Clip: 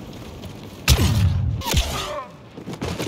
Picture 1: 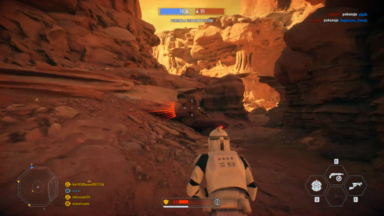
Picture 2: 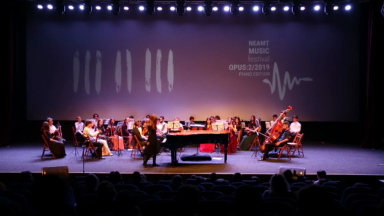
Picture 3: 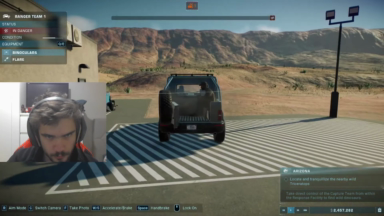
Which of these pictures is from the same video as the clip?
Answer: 1